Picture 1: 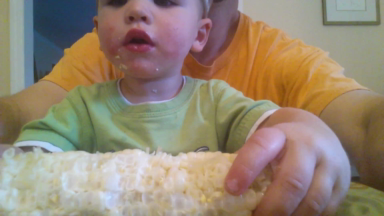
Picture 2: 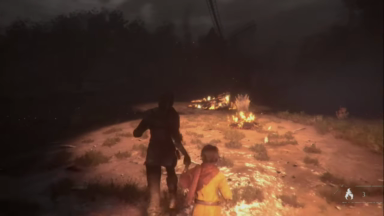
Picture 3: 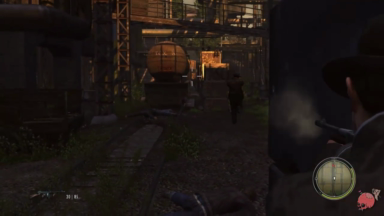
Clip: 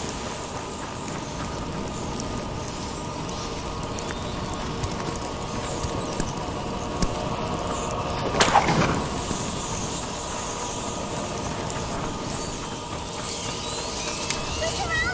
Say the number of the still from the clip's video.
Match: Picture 2